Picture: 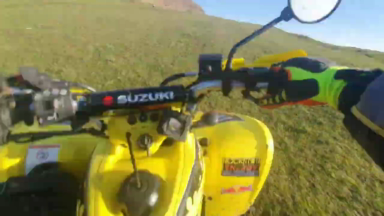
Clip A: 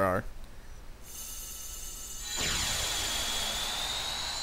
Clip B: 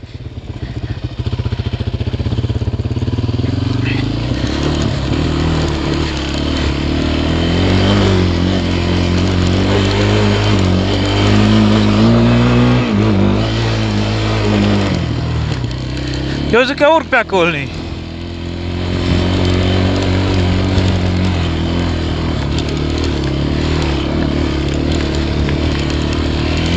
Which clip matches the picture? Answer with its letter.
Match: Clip B